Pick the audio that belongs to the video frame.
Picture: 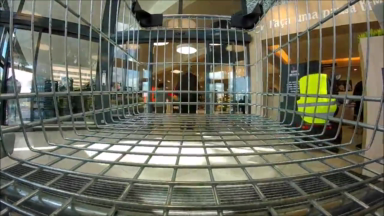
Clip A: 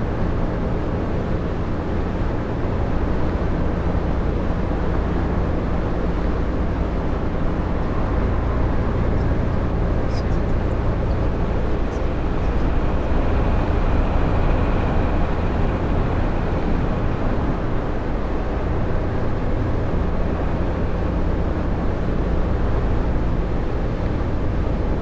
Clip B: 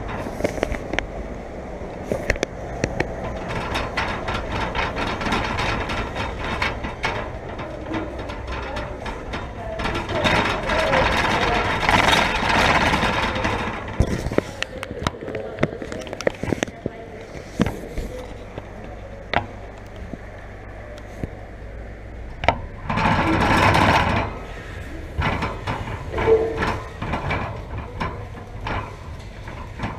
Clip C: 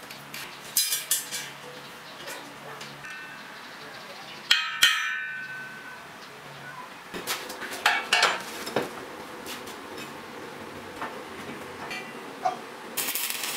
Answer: B